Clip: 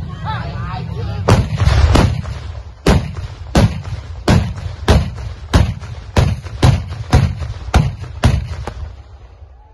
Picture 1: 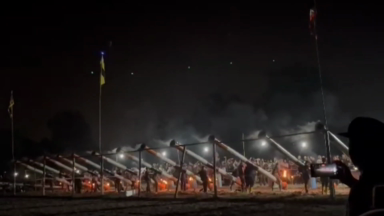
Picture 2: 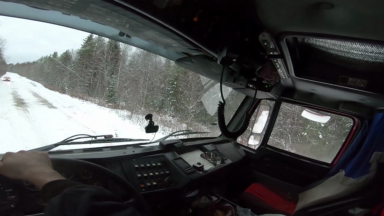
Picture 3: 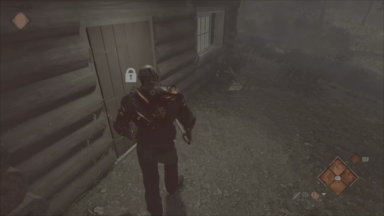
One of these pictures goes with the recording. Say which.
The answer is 1